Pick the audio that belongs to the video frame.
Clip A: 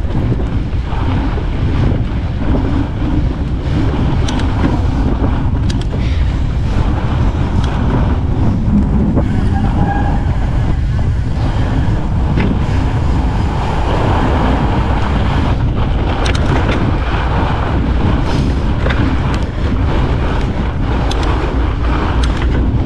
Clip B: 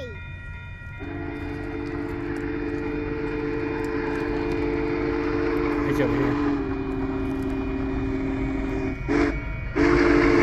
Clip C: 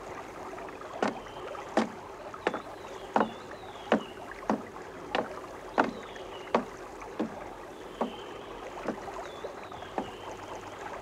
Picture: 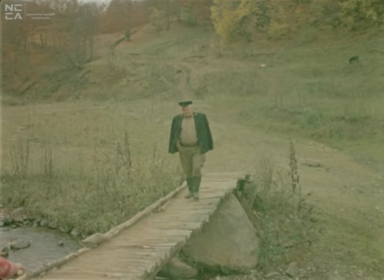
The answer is C